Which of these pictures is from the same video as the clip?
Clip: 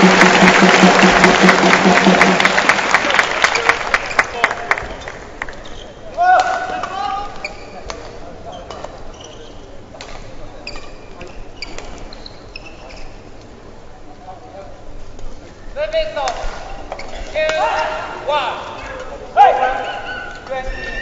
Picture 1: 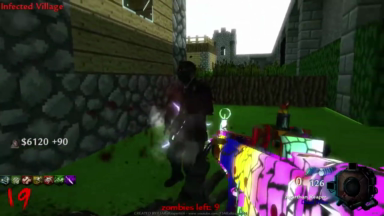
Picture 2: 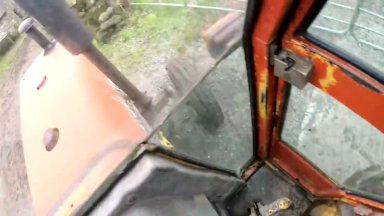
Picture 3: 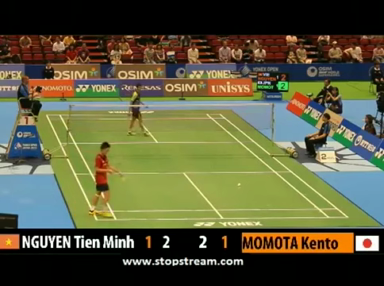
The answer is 3